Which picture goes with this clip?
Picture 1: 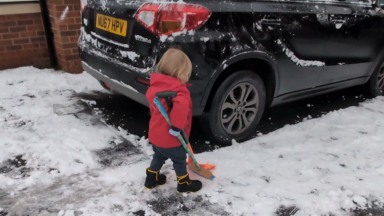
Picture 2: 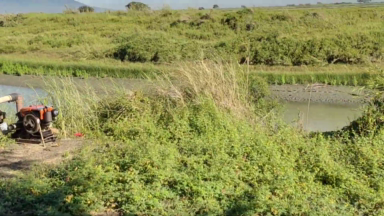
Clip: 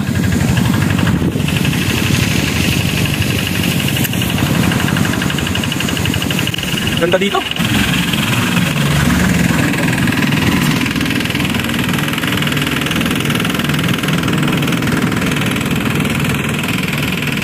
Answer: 2